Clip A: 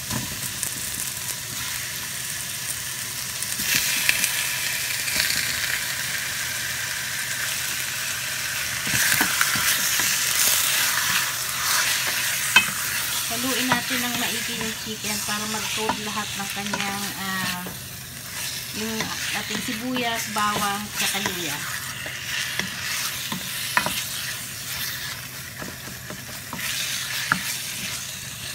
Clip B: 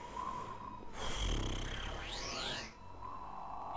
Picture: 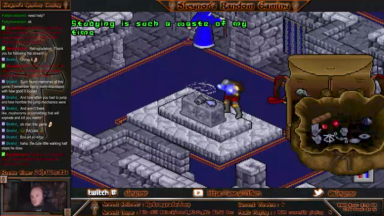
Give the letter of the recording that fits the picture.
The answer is B